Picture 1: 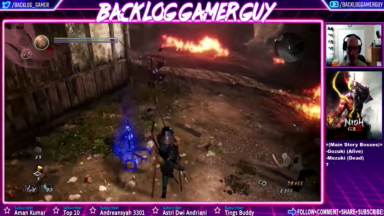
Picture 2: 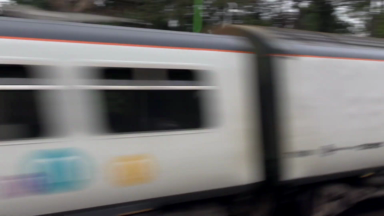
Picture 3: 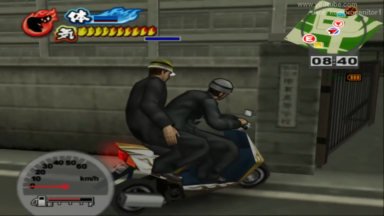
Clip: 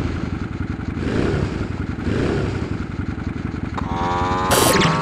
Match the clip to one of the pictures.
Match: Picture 3